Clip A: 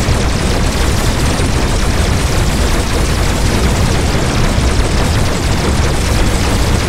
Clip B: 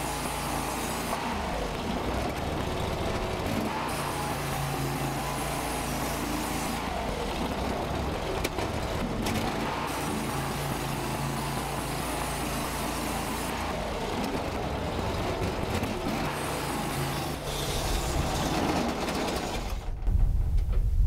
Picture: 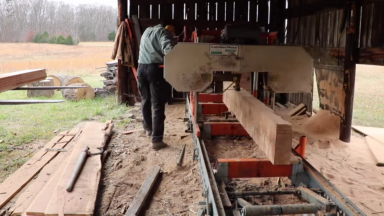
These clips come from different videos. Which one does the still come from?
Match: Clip B